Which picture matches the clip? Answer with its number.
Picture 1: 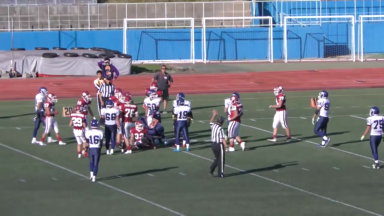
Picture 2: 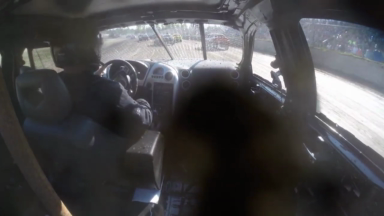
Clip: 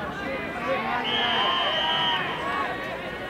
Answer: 1